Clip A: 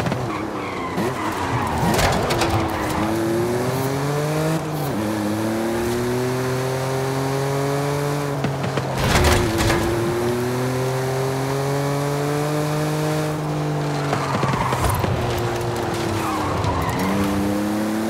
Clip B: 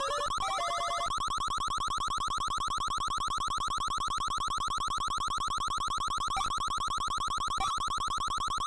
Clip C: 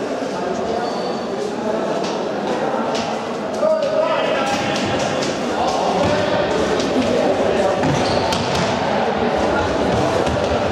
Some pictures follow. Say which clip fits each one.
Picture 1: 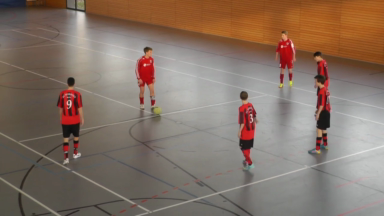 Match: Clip C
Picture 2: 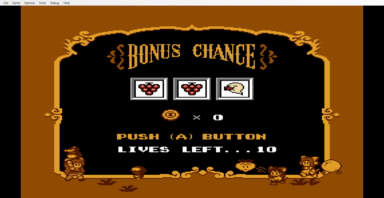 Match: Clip B